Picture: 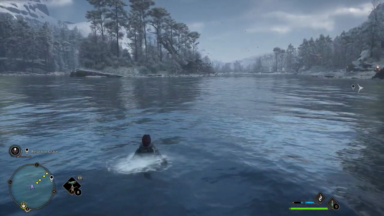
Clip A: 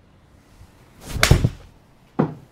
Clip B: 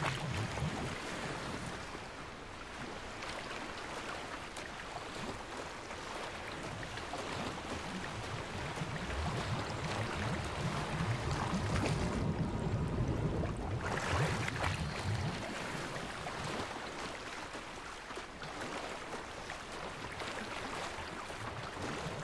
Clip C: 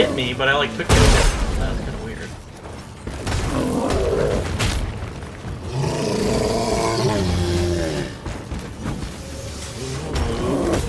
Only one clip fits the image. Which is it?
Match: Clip B